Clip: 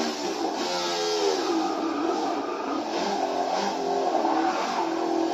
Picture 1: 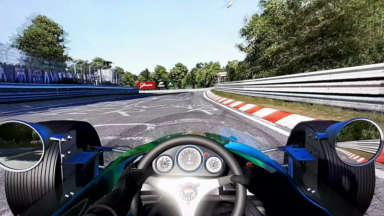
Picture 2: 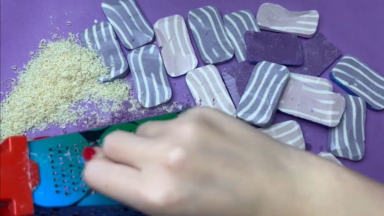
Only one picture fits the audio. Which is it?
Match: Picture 1